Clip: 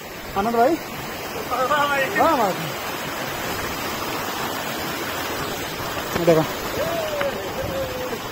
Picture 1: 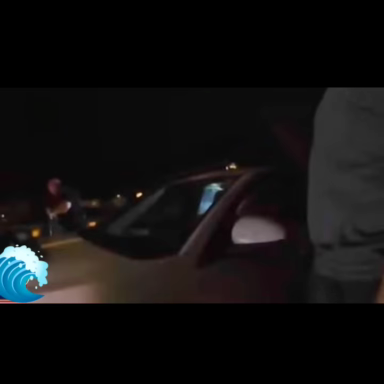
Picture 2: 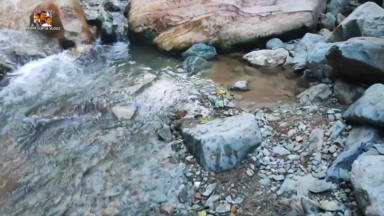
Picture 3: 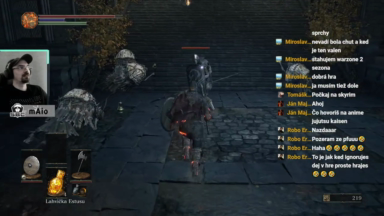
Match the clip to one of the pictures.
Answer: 2